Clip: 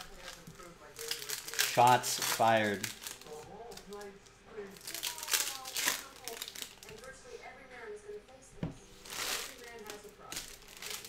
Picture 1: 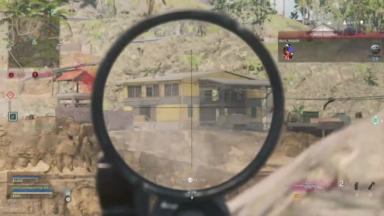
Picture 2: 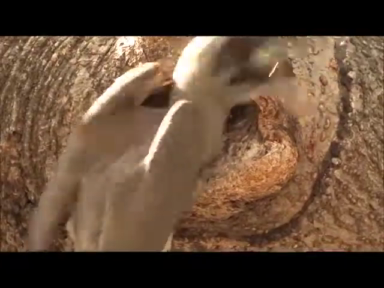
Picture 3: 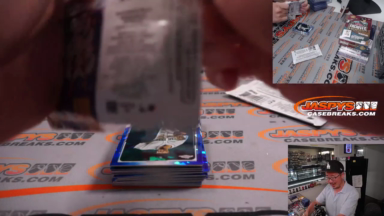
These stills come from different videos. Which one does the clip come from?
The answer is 3